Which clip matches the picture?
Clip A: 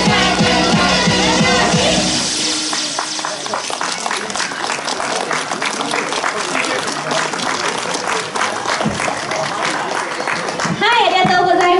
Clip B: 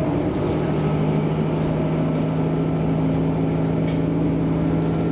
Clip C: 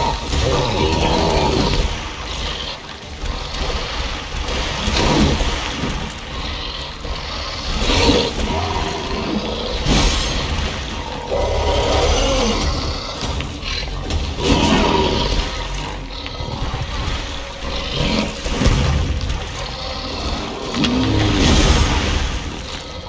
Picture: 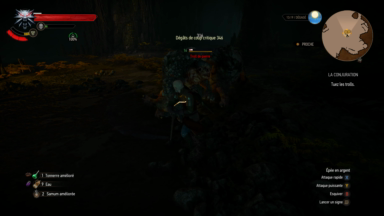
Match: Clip C